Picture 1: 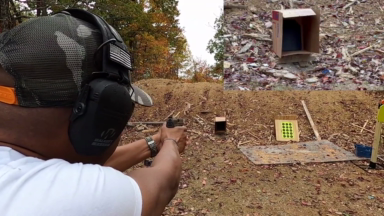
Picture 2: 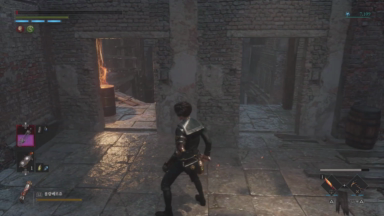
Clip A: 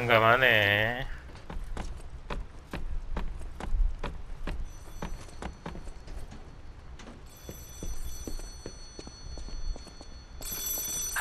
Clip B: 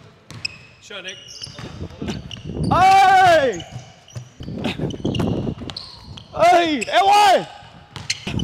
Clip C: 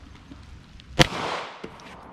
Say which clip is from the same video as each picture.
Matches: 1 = C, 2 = A